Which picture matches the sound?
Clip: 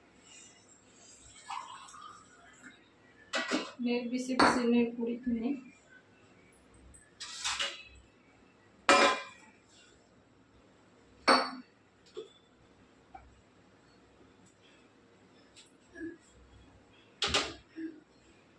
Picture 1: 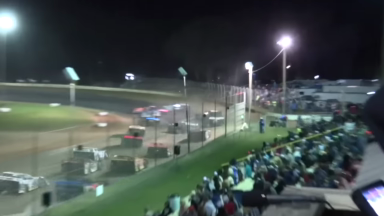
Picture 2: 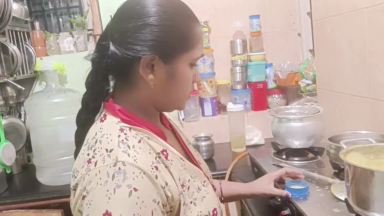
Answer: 2